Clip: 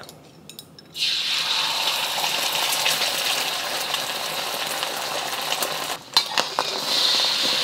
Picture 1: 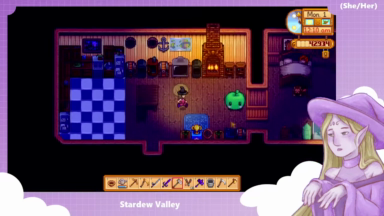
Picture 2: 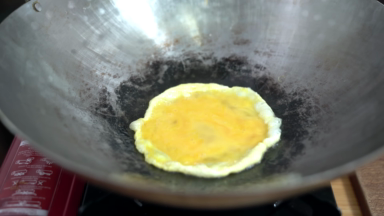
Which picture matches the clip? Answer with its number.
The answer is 2